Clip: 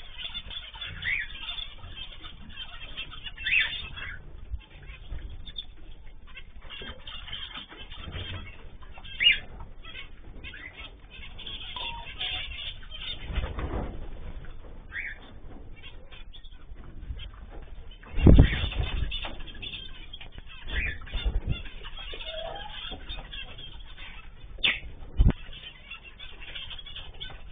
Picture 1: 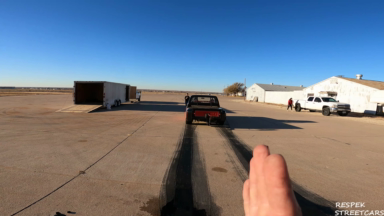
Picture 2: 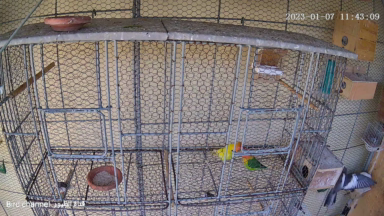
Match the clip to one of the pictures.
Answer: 2